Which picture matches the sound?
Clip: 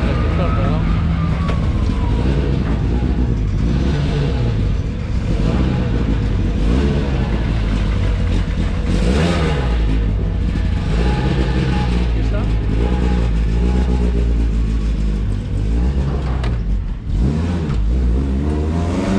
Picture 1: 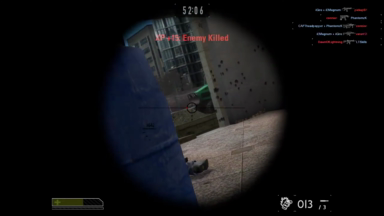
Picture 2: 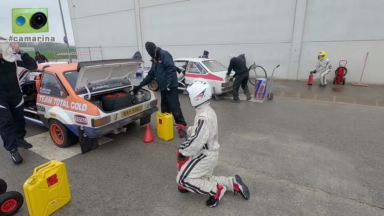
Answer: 2